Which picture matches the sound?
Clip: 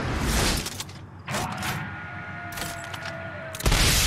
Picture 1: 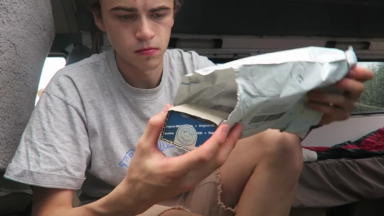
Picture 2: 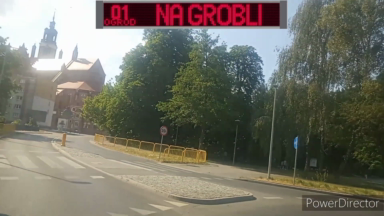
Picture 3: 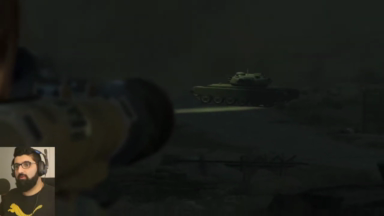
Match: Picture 3